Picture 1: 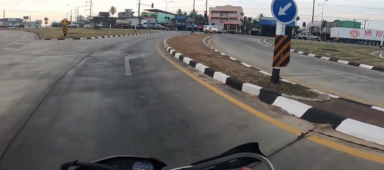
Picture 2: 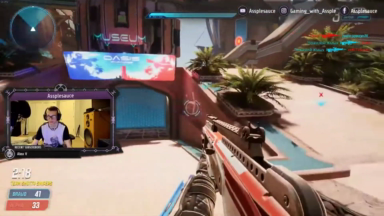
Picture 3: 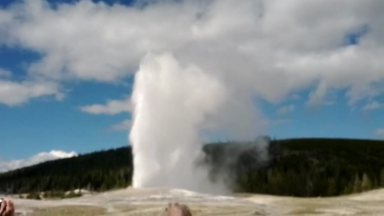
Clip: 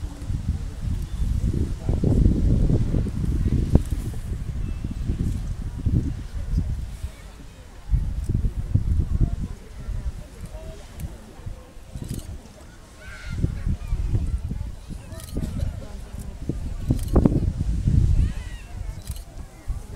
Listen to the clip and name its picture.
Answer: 3